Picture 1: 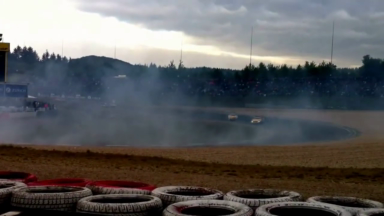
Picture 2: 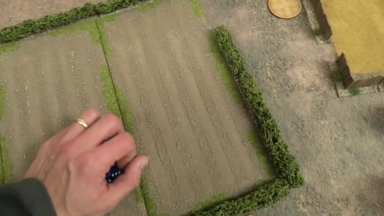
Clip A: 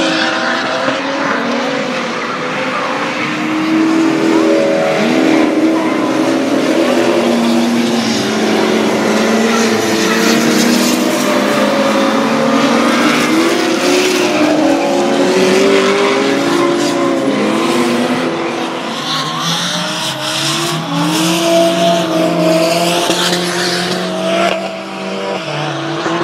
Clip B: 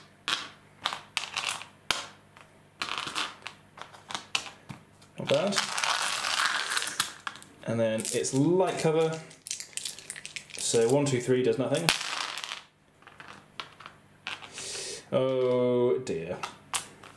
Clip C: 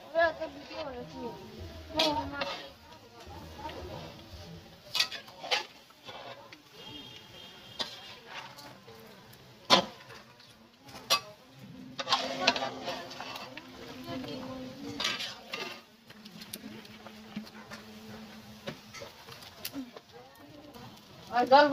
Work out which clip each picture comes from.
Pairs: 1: A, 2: B